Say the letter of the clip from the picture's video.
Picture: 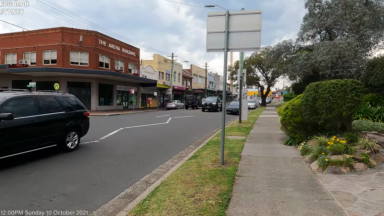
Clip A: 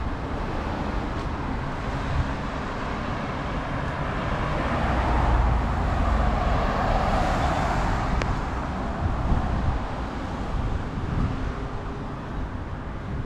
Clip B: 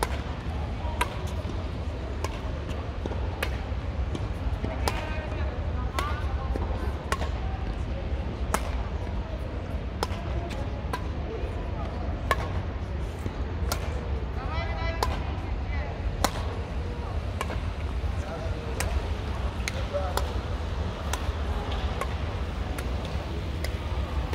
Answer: A